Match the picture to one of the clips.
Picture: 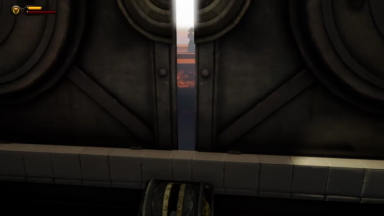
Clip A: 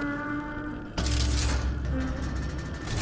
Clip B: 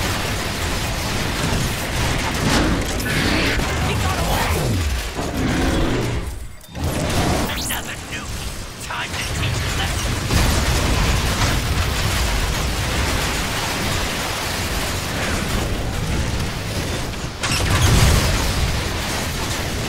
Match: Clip A